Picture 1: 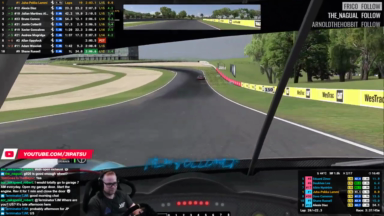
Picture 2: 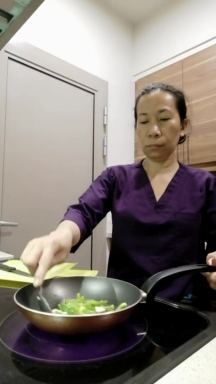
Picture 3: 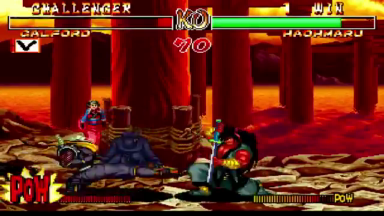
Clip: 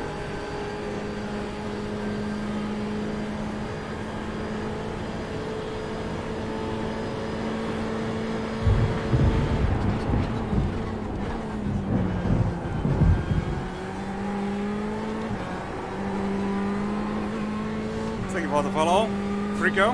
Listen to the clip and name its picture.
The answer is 1